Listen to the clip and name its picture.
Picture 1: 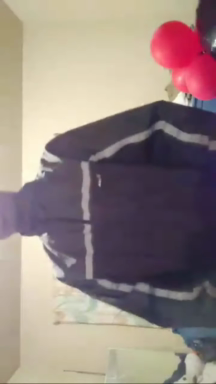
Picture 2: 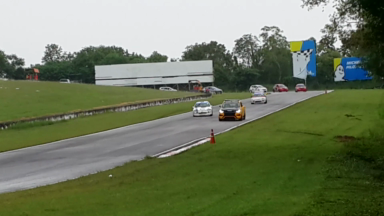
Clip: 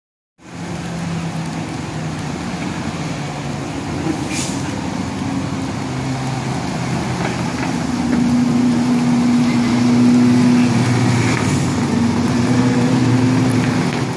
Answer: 2